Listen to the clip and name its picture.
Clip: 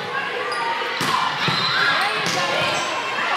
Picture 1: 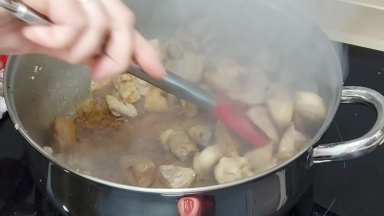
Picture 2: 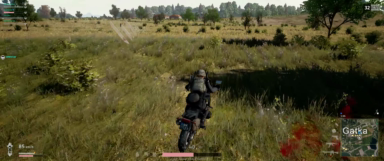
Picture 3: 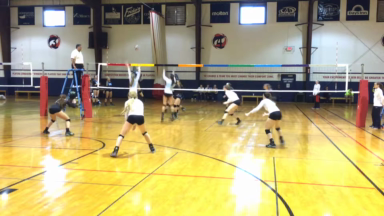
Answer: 3